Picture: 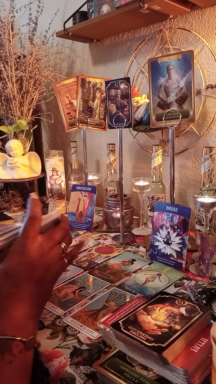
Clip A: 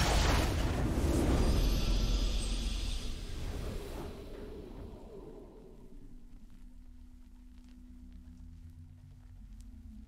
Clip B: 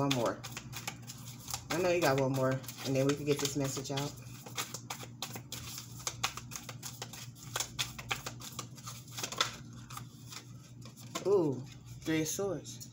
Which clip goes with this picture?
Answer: B